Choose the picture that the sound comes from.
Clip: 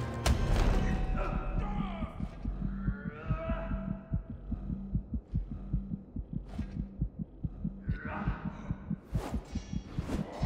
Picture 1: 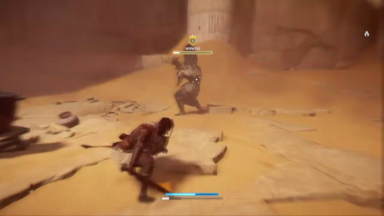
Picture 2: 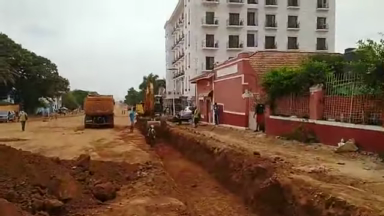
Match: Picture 1